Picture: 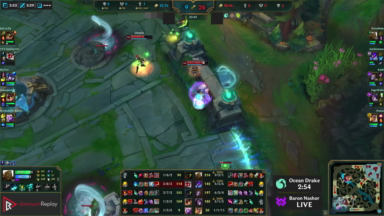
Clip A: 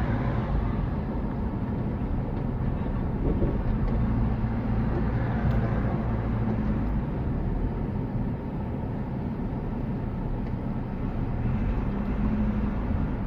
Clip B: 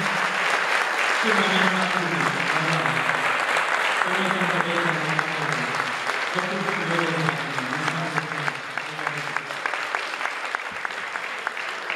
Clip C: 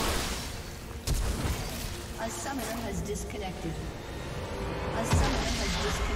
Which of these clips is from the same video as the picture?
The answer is C